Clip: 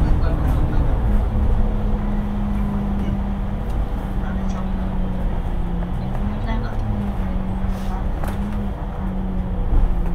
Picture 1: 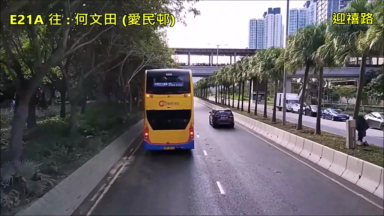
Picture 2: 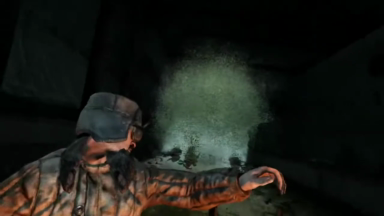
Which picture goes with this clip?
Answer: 1